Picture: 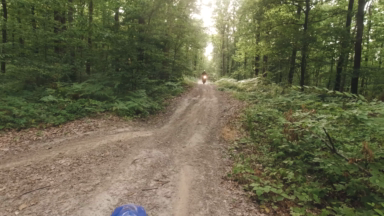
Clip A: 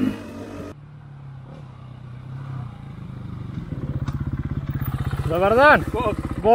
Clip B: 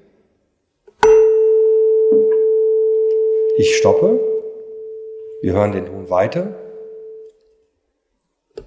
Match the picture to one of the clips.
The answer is A